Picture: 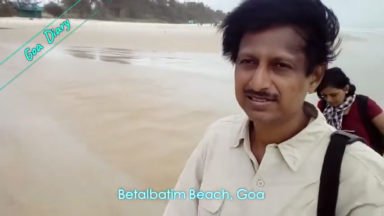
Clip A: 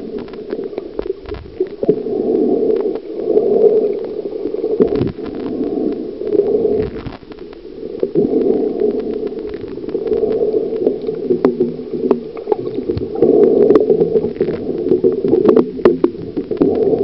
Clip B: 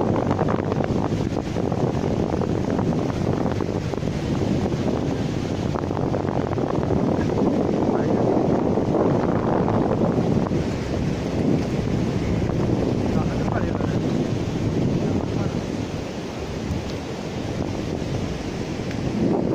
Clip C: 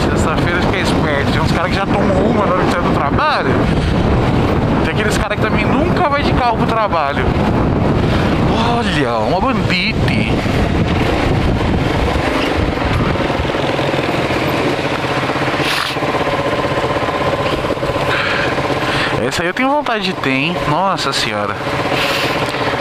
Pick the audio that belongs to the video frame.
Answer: B